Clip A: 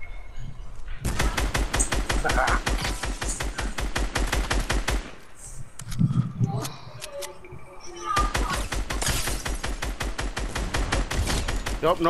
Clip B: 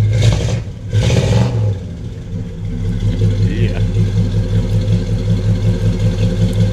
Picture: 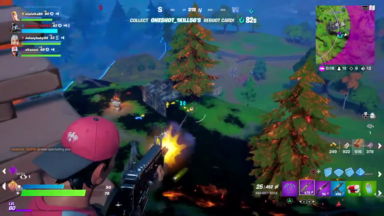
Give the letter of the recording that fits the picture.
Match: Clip A